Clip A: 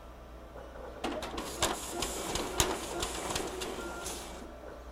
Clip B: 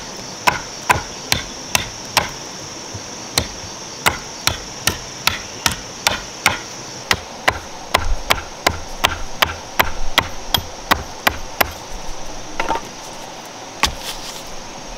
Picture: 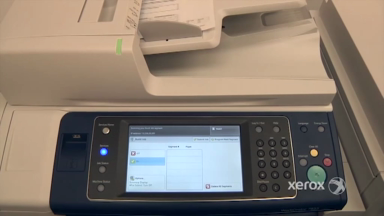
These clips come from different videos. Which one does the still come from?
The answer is A